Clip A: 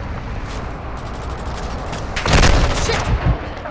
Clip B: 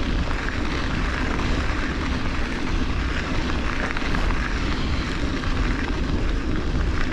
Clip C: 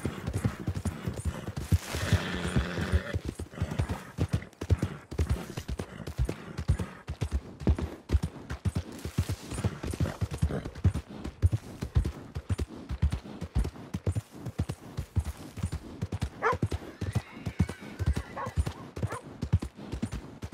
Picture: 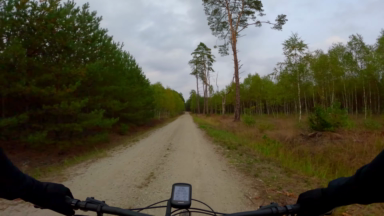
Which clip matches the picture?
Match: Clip B